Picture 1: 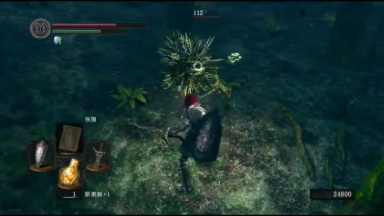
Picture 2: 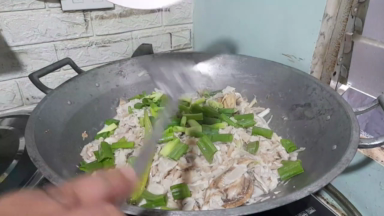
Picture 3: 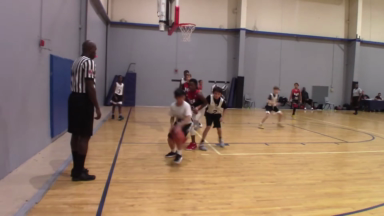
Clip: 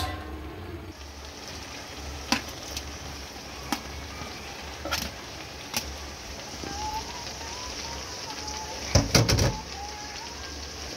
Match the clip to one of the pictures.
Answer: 2